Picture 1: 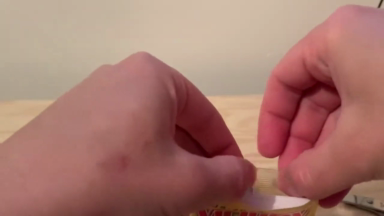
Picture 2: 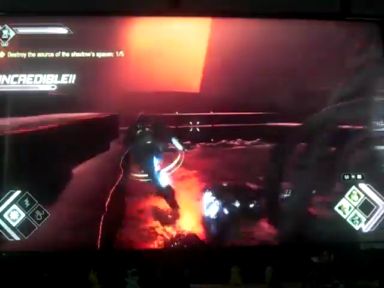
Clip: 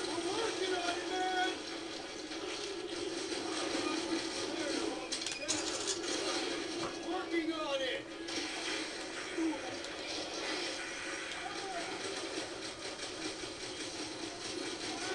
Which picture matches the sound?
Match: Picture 2